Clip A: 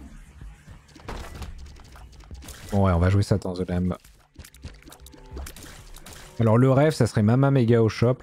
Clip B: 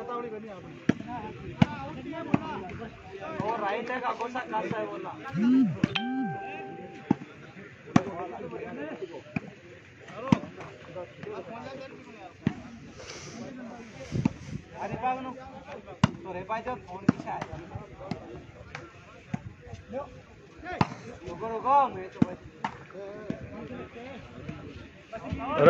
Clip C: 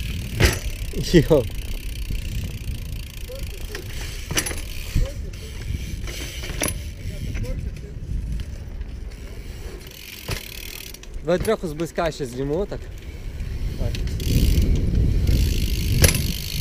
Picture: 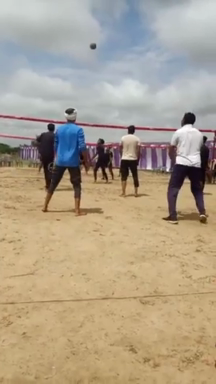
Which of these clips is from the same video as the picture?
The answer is B